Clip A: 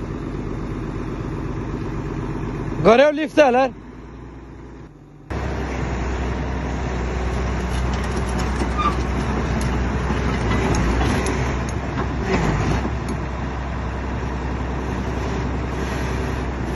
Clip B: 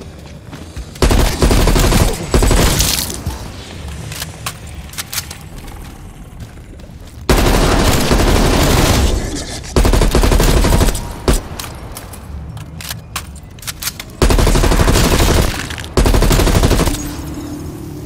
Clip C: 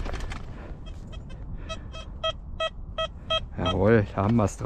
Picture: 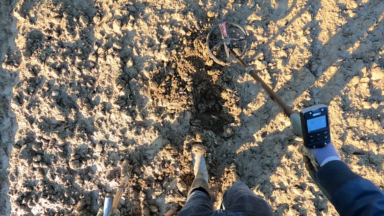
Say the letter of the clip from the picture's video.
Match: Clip C